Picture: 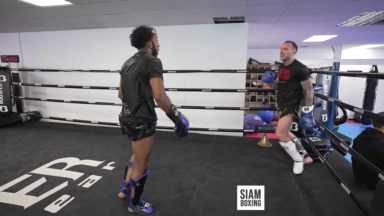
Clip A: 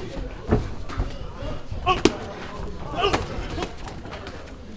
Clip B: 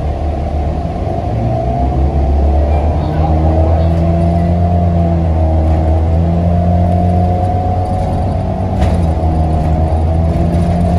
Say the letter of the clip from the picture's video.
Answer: A